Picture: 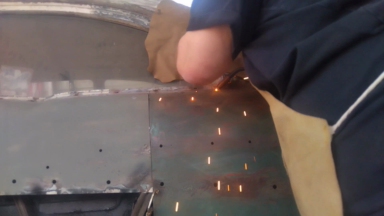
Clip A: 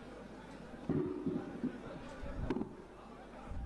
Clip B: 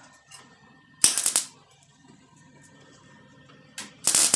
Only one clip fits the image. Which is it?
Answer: B